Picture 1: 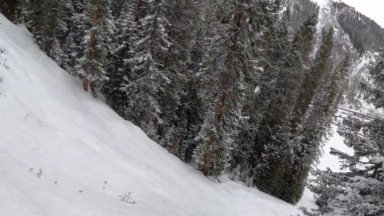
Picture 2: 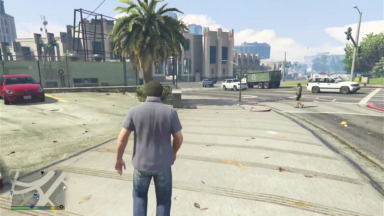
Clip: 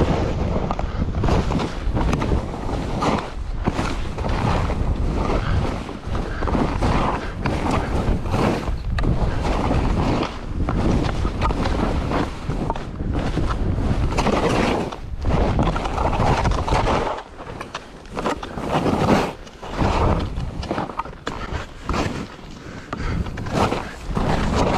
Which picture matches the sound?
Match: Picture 1